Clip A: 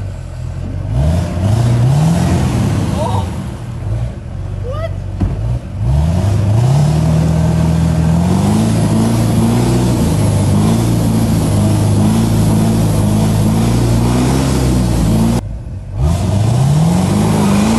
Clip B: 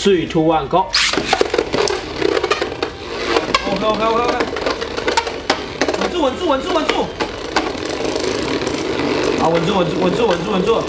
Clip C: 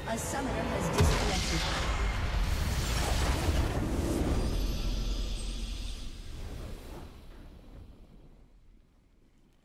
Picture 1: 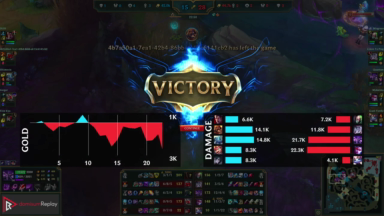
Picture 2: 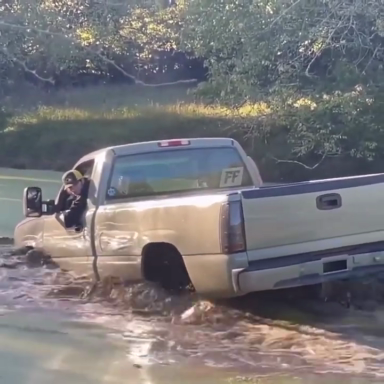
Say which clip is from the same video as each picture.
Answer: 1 C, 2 A